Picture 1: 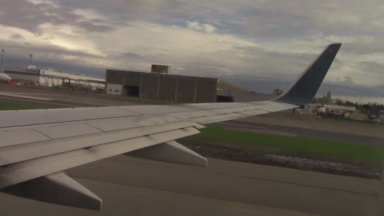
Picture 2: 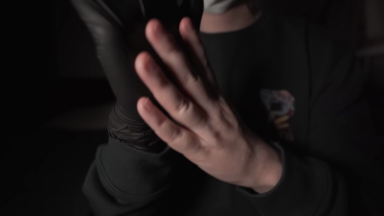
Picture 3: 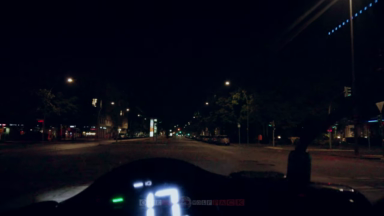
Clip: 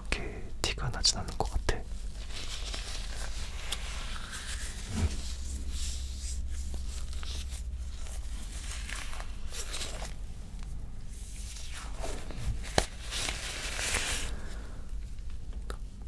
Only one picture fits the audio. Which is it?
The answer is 2